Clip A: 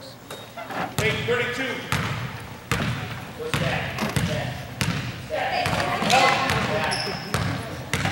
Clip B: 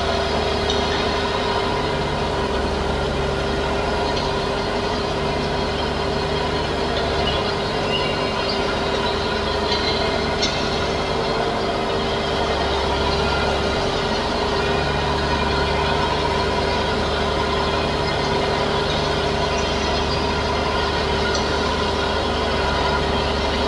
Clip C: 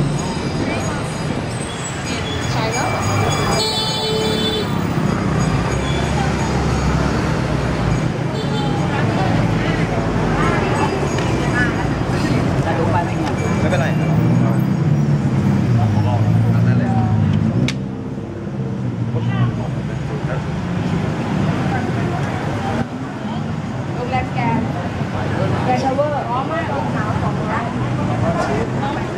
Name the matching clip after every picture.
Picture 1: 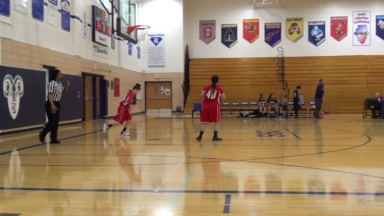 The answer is A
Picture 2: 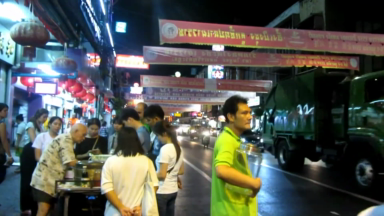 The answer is C